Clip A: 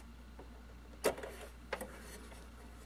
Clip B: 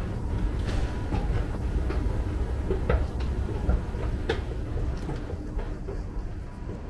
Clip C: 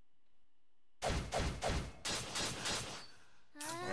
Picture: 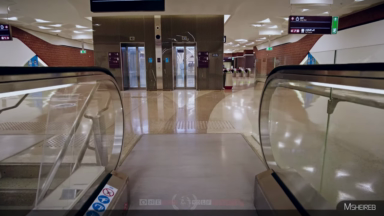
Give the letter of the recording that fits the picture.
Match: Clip B